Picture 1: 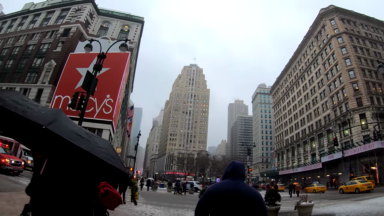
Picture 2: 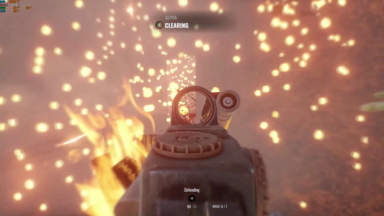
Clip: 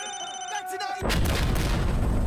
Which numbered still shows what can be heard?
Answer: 2